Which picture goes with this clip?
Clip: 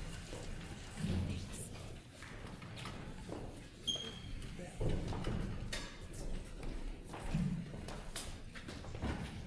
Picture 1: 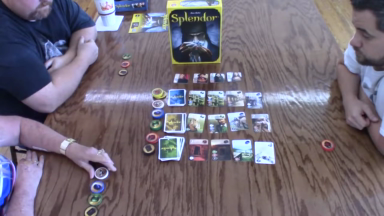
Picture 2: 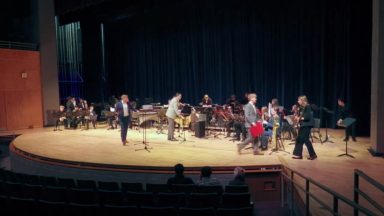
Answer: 2